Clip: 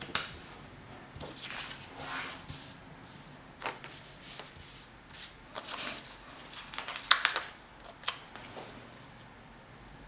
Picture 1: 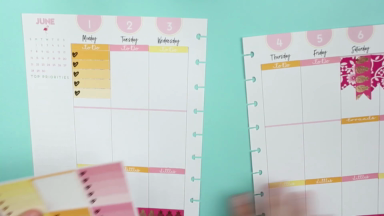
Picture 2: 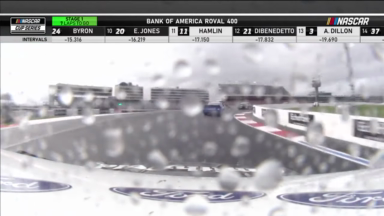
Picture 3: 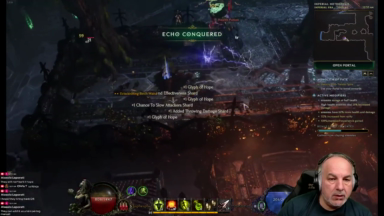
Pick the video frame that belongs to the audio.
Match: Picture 1